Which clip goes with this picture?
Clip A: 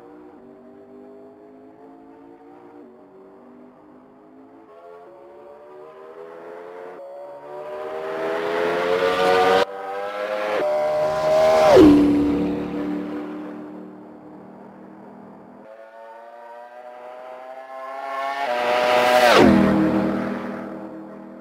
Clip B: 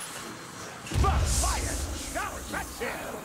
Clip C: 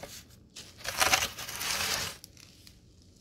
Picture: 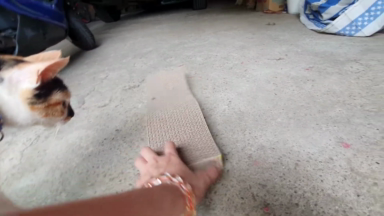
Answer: C